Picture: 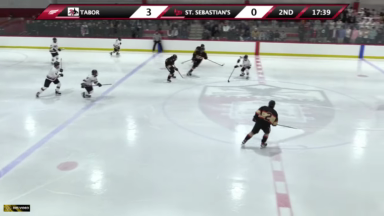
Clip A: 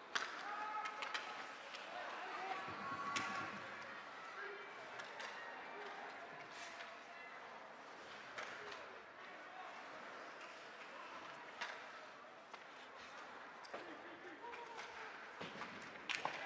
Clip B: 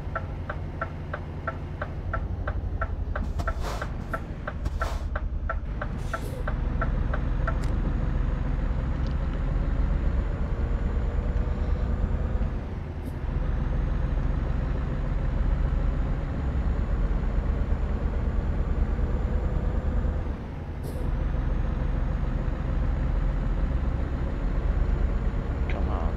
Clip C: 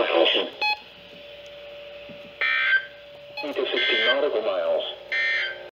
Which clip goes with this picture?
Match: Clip A